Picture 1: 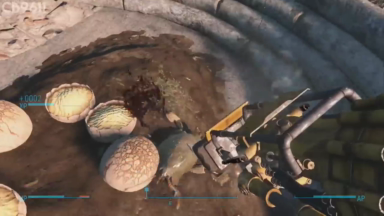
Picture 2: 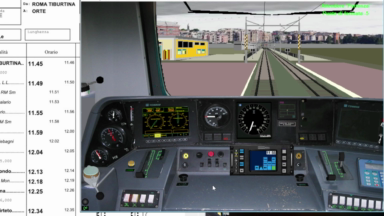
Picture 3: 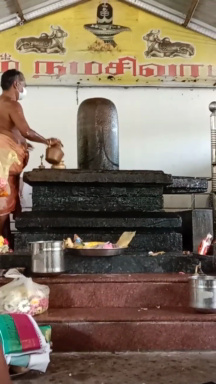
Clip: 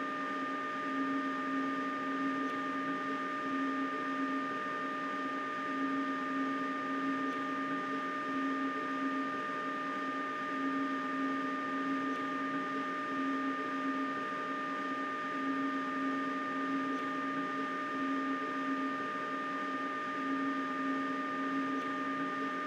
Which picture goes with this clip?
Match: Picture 2